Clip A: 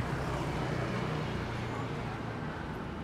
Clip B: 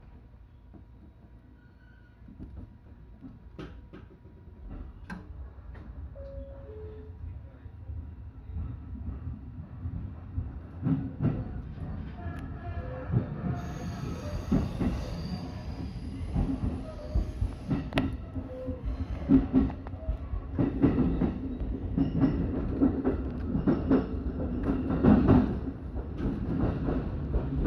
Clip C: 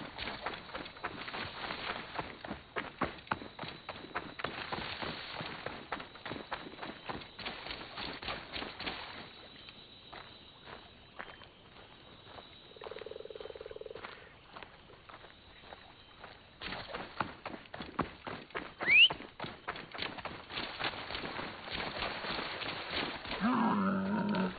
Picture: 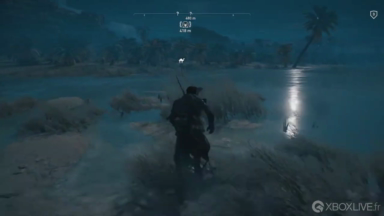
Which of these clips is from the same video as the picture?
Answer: C